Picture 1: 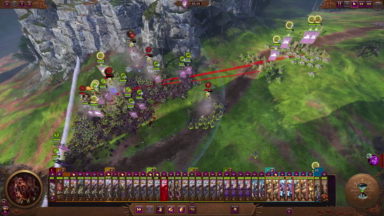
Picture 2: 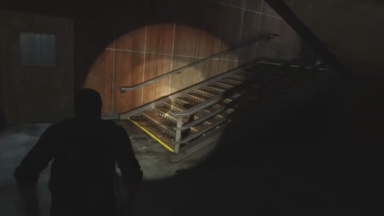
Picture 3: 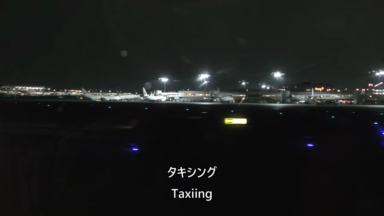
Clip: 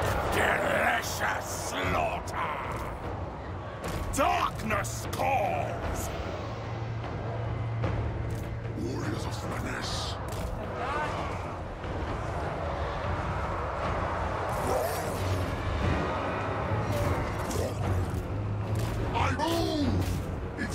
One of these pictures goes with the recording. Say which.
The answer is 1